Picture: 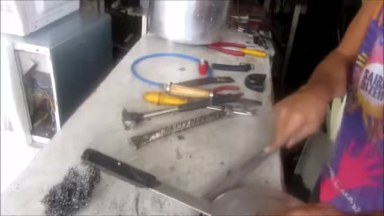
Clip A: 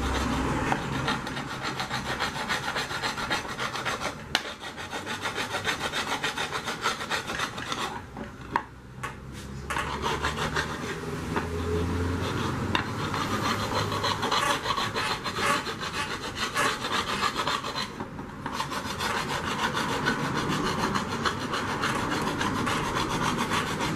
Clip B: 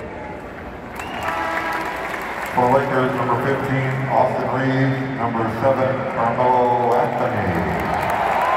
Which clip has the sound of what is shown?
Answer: A